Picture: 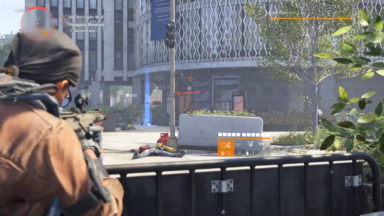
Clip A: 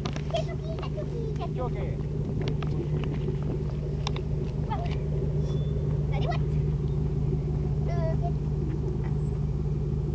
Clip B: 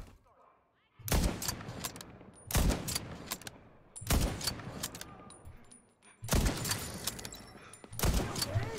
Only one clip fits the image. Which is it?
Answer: B